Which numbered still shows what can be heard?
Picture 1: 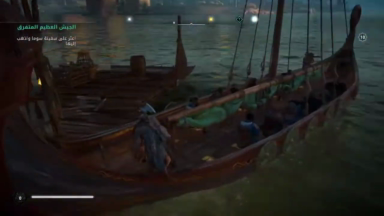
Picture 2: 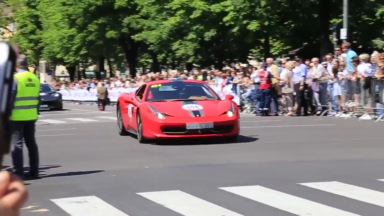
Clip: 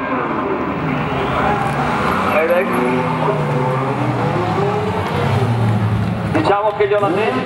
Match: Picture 2